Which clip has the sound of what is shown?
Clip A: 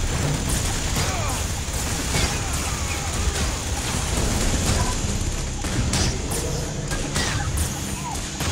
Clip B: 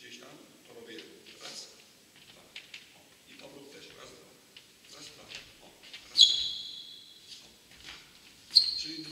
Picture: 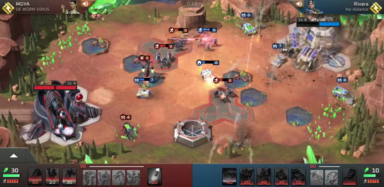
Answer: A